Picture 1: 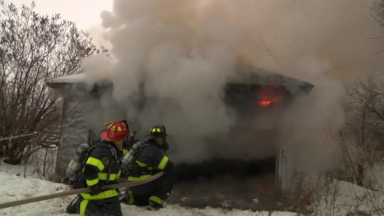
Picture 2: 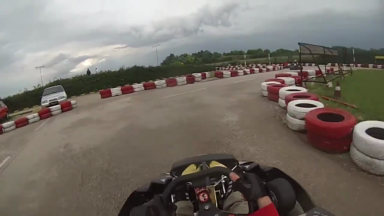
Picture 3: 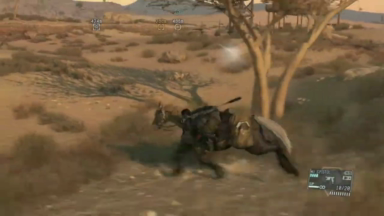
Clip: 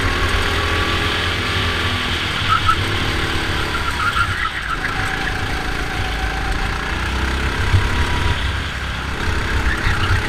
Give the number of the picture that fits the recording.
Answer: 2